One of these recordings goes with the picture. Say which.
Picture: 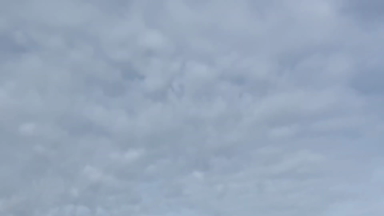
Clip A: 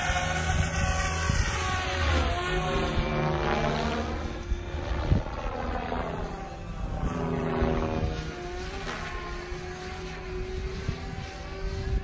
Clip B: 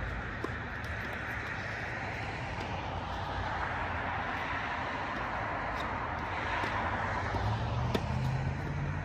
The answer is A